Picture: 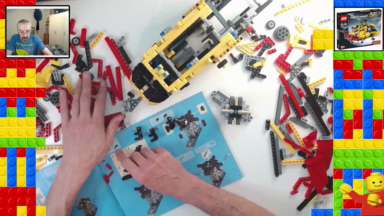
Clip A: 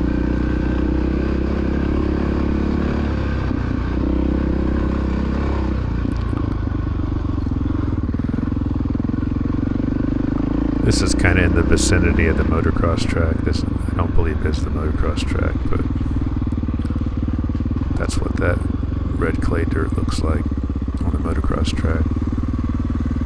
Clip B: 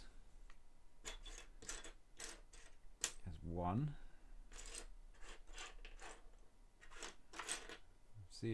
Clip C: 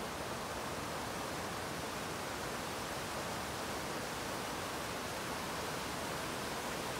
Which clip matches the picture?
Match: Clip B